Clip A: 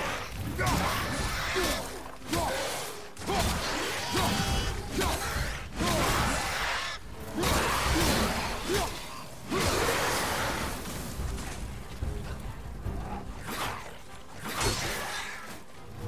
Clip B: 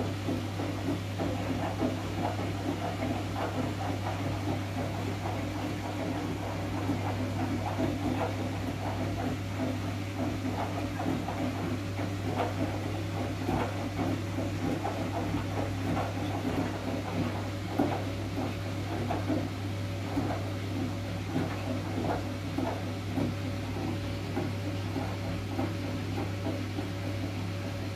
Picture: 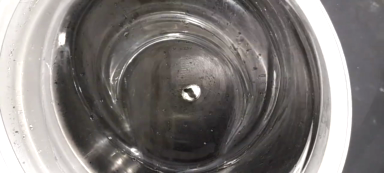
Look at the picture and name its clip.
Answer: B